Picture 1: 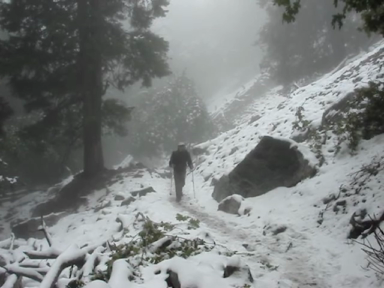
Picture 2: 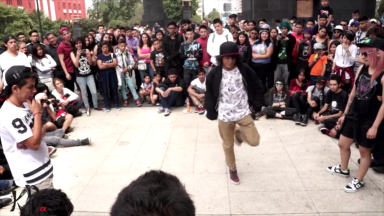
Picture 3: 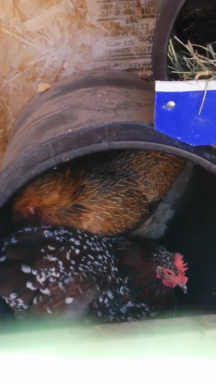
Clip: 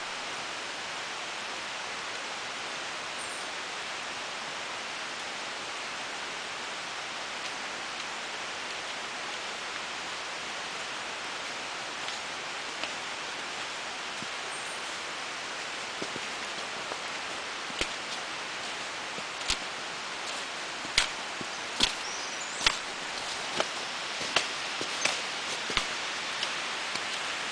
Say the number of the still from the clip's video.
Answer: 1